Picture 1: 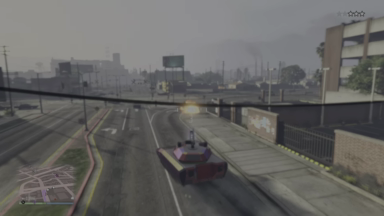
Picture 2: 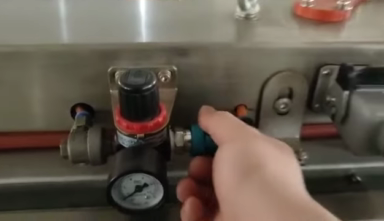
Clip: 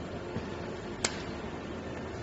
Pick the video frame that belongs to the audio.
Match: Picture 2